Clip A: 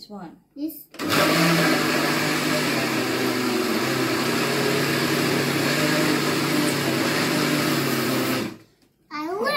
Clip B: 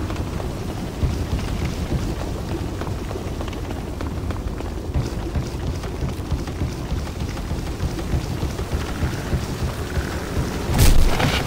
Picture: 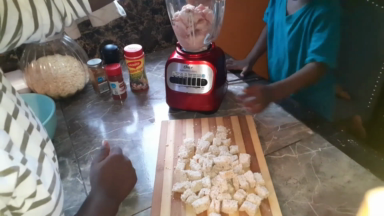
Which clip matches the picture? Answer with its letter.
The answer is A